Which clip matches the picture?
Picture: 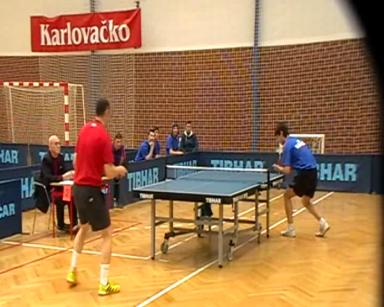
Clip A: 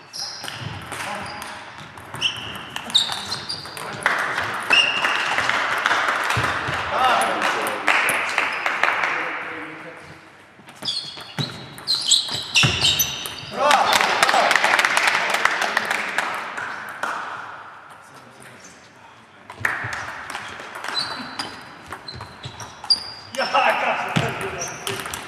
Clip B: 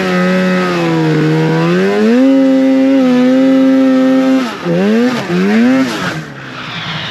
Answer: A